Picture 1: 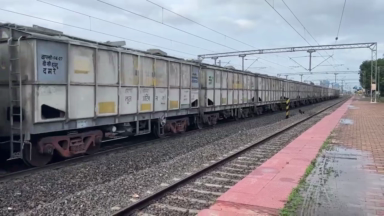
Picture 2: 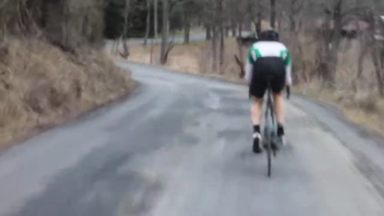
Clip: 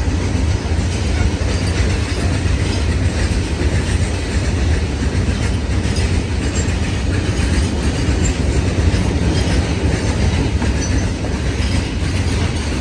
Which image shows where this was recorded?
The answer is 1